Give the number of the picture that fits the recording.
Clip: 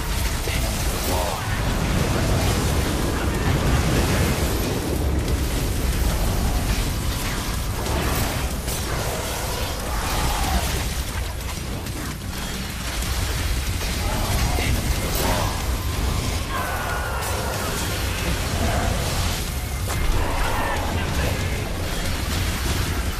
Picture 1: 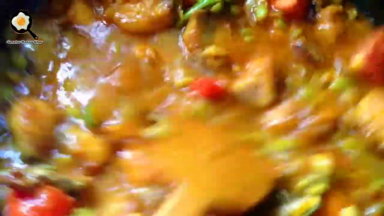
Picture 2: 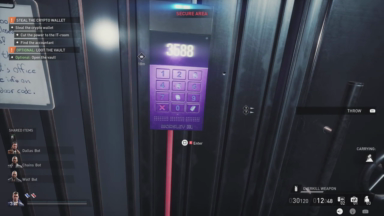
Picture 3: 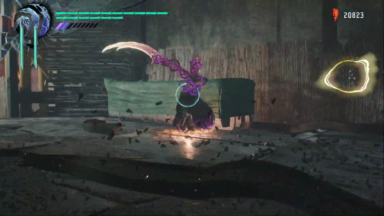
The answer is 3